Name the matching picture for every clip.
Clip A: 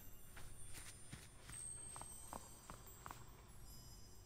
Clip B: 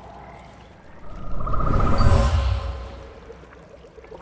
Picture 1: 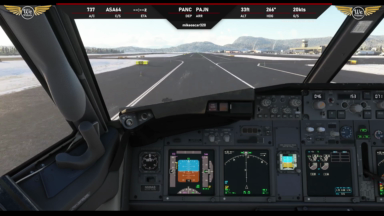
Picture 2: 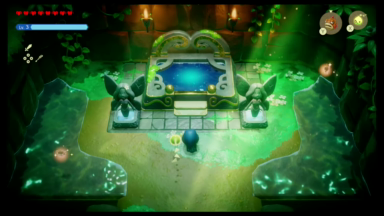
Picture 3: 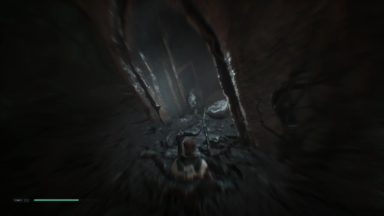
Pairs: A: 2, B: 3